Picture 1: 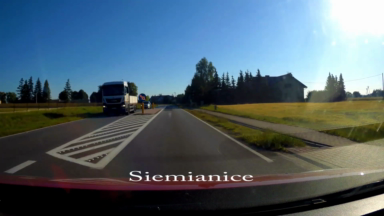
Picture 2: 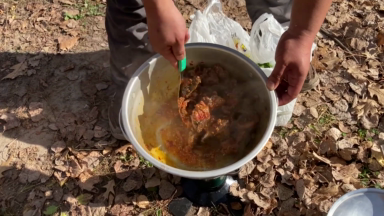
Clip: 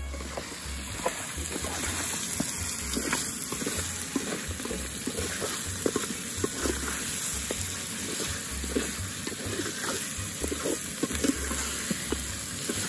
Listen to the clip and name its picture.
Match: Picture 2